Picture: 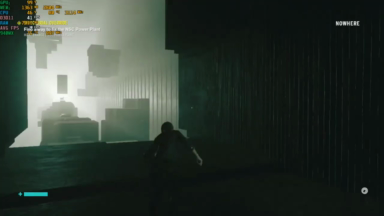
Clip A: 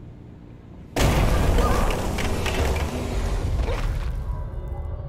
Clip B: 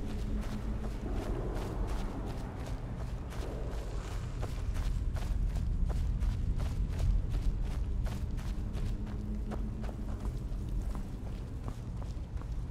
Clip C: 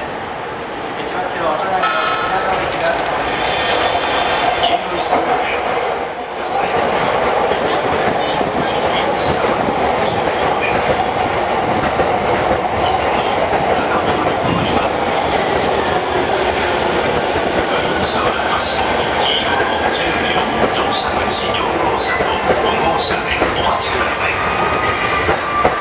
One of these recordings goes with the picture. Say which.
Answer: A